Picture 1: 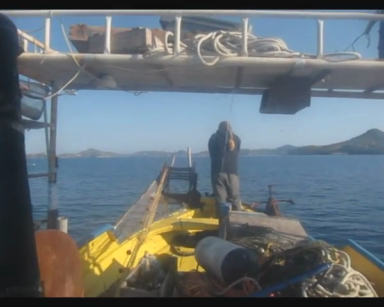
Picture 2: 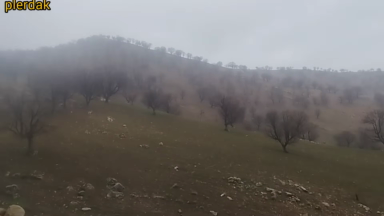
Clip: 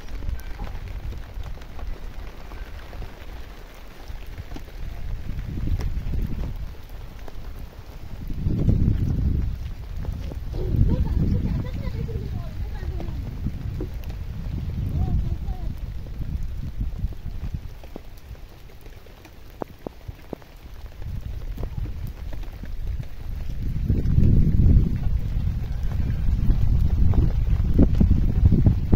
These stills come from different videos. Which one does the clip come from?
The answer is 2